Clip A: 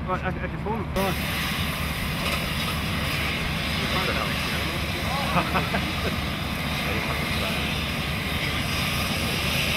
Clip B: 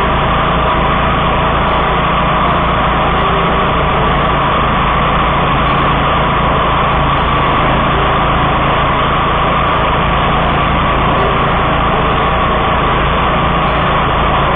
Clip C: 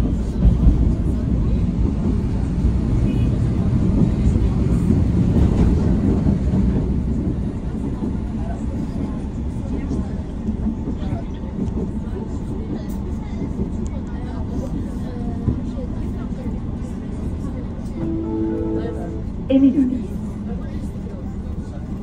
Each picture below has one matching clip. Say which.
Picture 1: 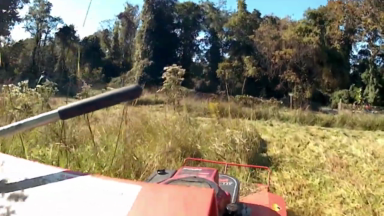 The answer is B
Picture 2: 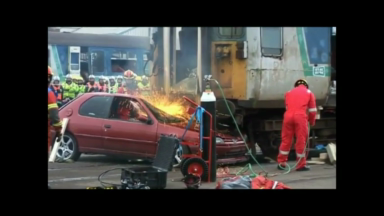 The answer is A